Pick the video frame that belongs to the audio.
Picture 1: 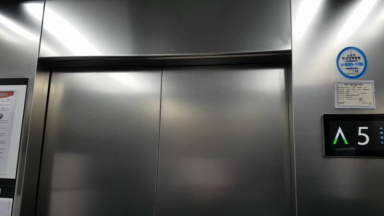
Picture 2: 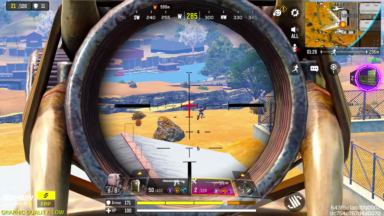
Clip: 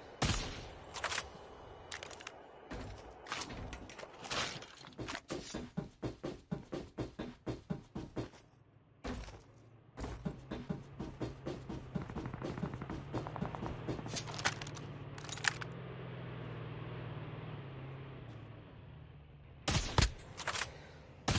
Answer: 2